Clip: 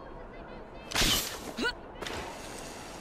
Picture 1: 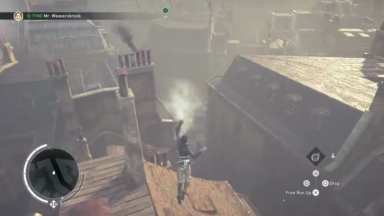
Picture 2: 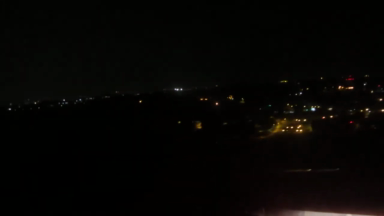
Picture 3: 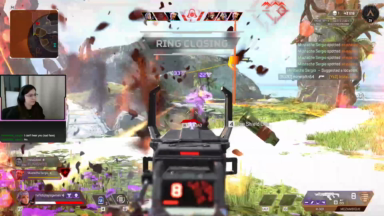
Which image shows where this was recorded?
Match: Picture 1